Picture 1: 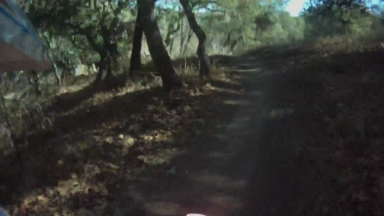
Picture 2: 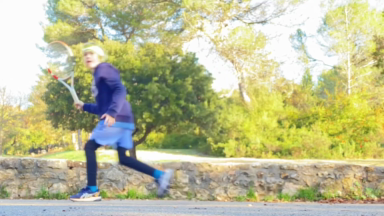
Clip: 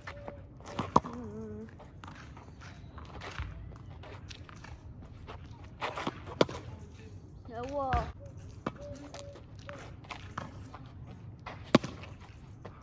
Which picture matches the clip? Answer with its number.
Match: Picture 2